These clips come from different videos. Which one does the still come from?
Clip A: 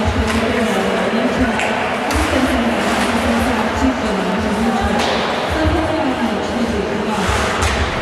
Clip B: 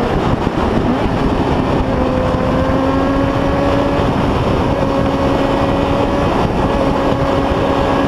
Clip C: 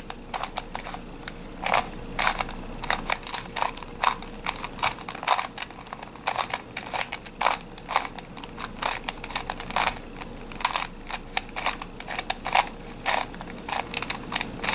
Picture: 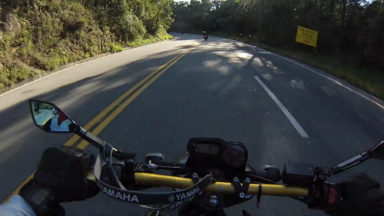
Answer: B